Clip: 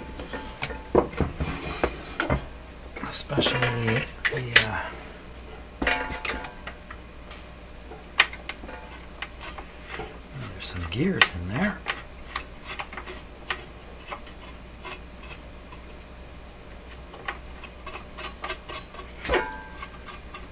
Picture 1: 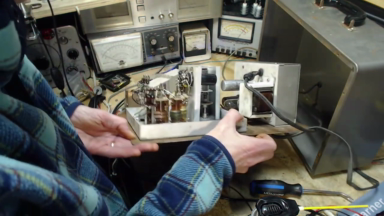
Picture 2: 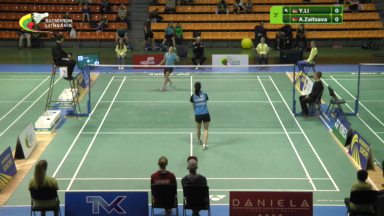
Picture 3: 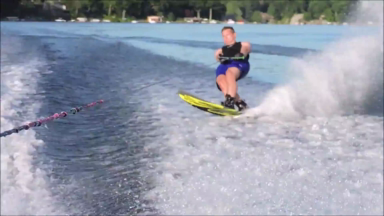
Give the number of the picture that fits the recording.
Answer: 1